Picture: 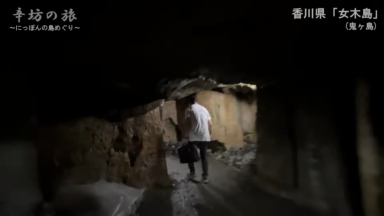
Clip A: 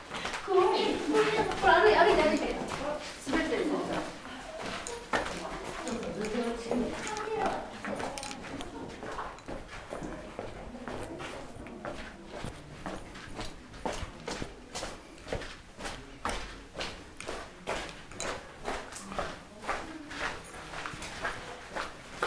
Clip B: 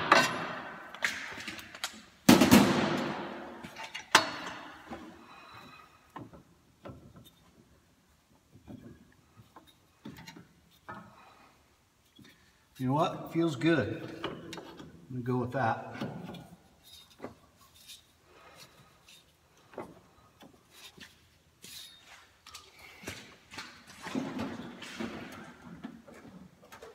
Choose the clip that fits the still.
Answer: A